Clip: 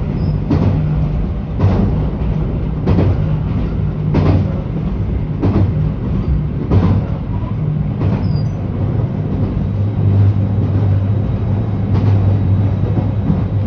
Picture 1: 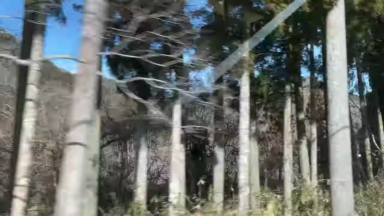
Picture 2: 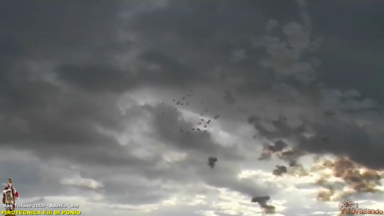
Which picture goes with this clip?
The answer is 1